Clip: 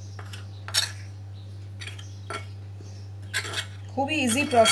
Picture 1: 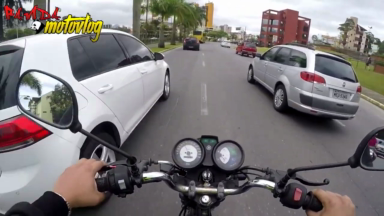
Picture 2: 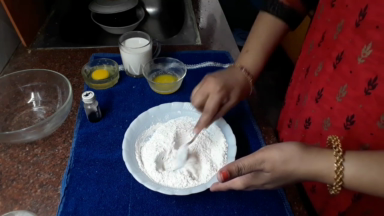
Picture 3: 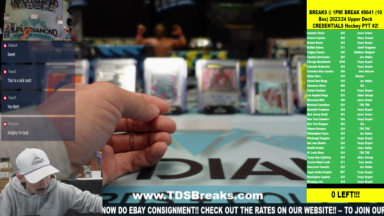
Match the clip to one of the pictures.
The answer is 2